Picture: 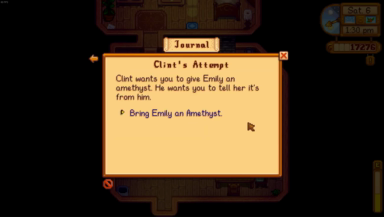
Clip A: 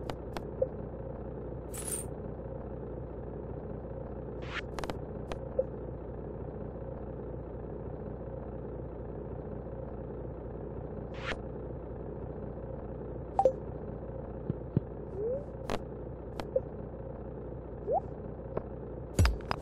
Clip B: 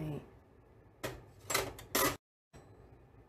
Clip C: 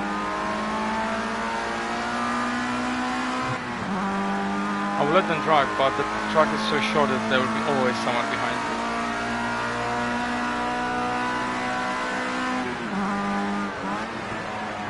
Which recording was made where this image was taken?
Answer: A